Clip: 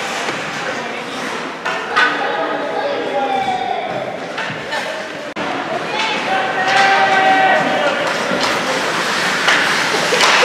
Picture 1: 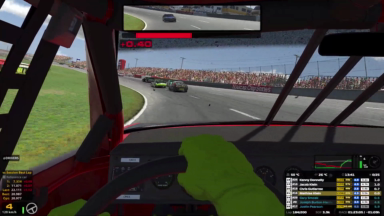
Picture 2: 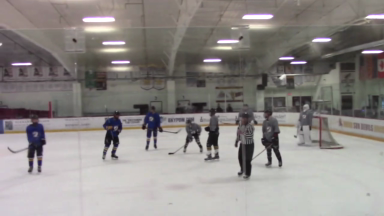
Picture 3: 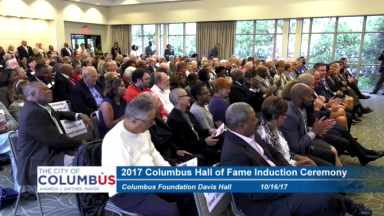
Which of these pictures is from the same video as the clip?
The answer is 2